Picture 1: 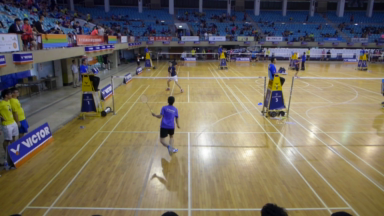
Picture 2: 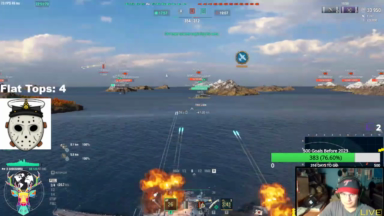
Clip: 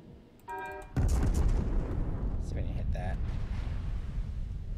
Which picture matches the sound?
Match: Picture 2